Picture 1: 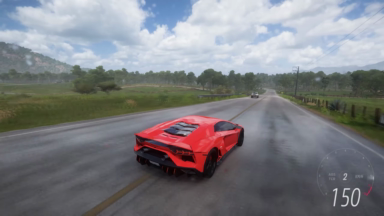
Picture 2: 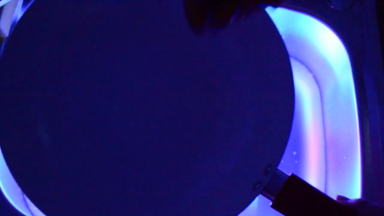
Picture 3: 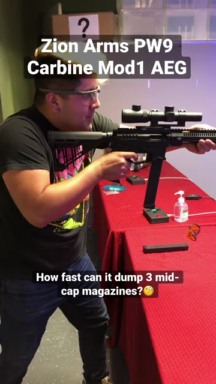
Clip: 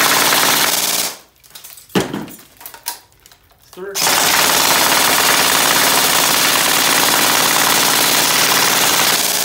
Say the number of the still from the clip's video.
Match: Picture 3